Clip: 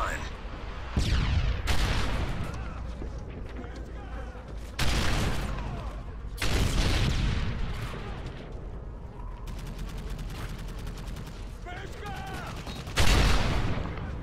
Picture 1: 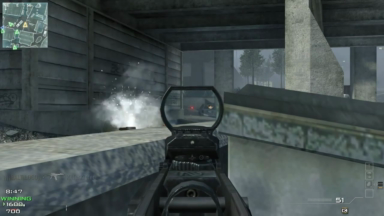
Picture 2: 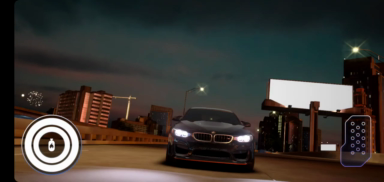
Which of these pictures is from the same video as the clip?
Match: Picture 1